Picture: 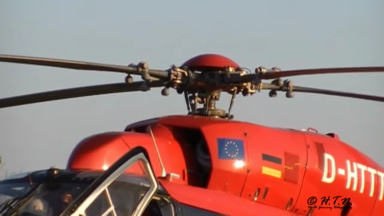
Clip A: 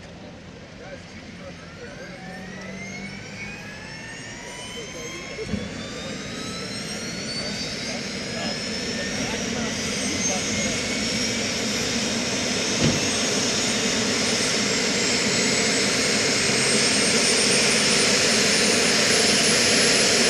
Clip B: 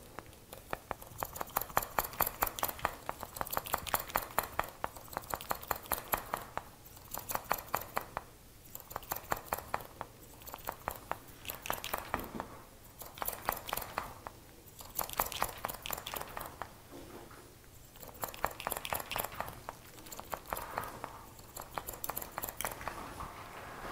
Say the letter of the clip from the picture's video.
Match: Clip A